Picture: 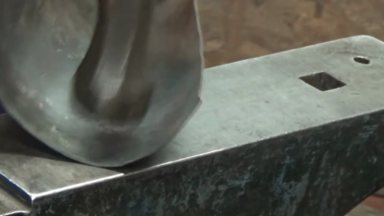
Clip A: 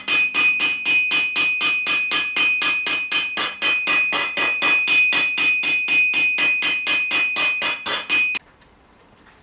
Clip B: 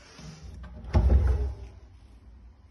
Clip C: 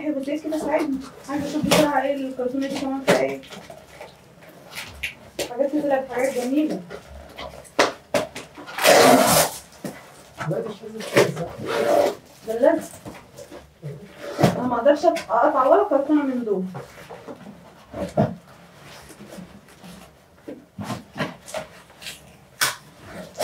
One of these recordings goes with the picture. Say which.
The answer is A